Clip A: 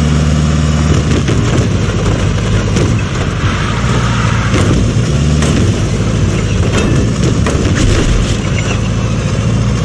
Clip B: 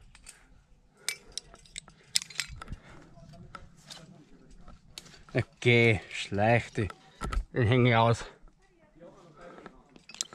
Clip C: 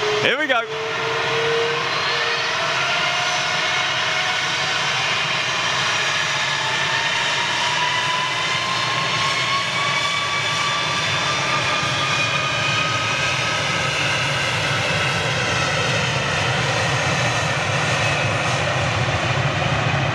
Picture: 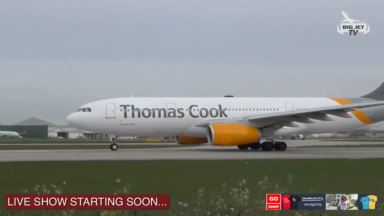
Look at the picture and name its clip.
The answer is C